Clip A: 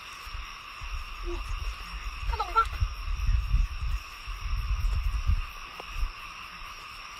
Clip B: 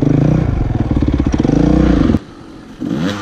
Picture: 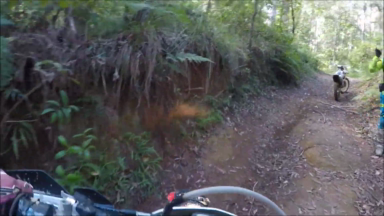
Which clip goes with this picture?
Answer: B